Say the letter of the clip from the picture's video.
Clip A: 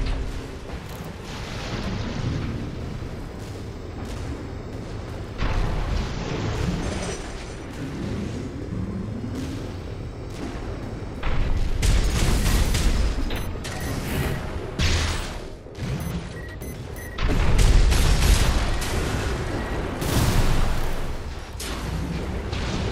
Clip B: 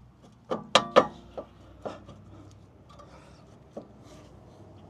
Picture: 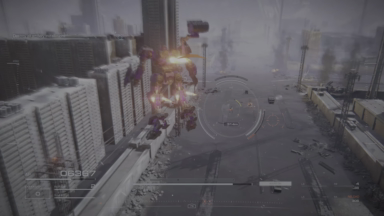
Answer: A